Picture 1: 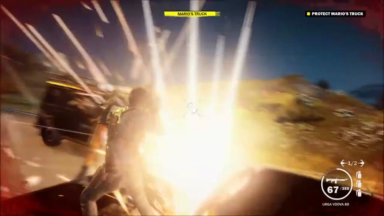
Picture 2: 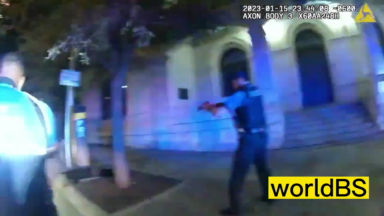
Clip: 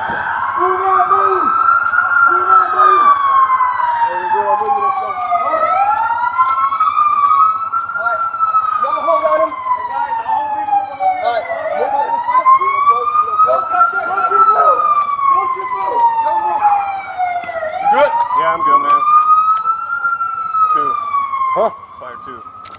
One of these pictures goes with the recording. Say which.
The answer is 2